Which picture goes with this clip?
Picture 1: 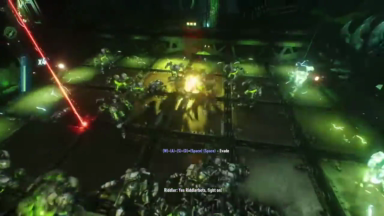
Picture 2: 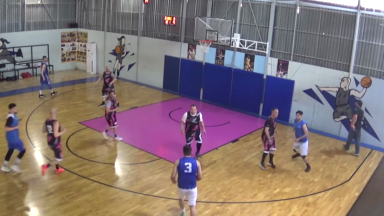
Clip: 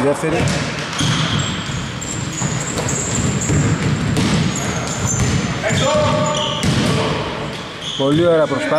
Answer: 2